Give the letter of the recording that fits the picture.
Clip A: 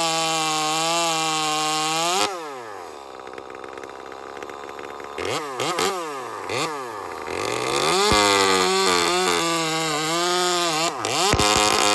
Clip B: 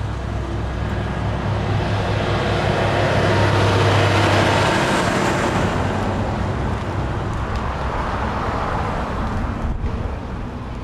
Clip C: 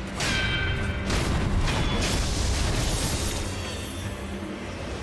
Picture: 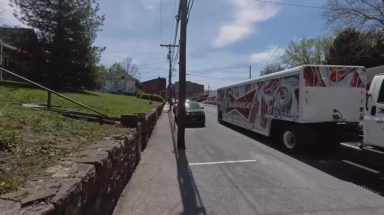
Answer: B